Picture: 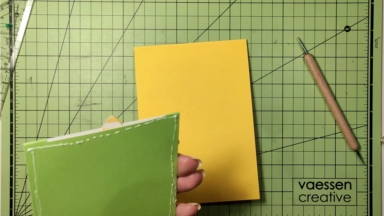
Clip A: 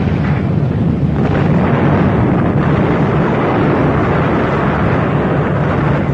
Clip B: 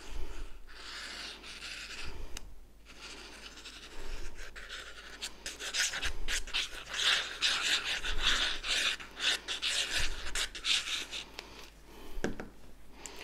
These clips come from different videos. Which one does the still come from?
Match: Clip B